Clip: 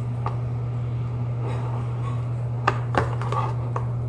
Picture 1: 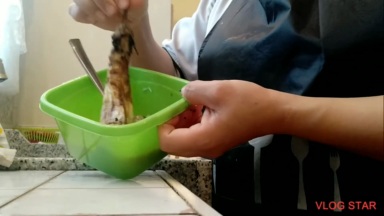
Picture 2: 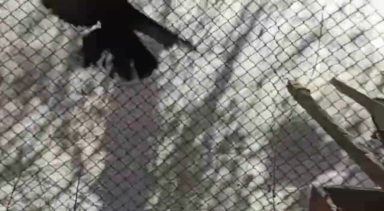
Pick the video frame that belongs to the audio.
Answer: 1